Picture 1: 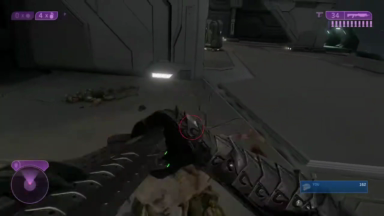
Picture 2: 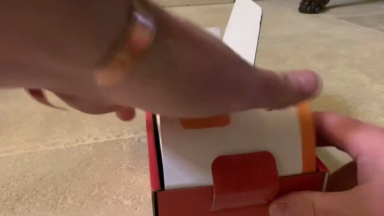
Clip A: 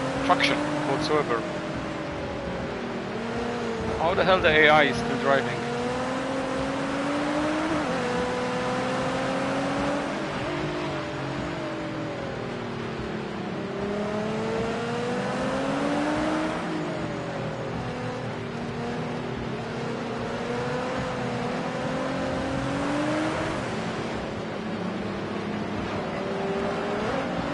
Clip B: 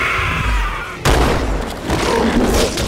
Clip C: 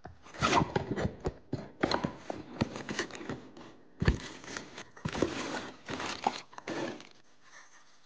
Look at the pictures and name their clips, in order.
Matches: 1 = B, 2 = C